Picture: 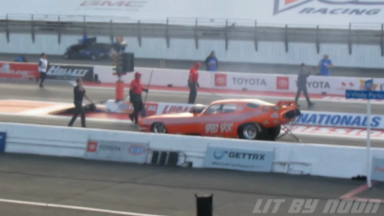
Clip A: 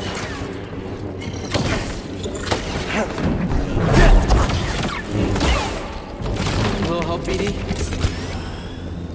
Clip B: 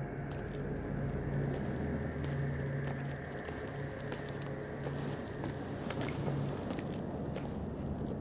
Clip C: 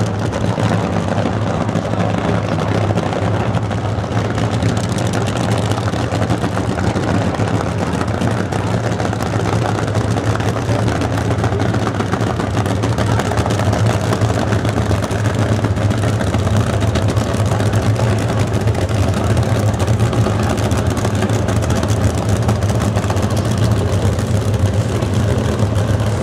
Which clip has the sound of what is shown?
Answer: C